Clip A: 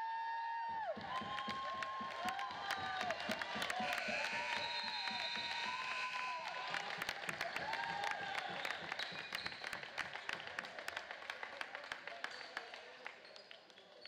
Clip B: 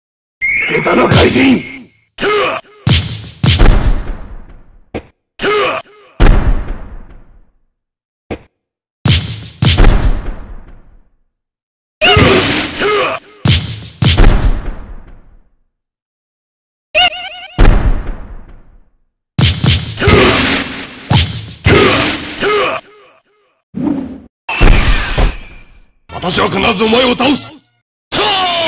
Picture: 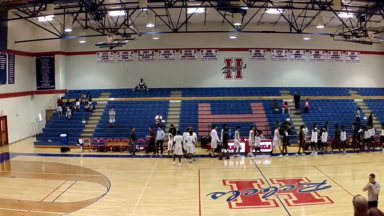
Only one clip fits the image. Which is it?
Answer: A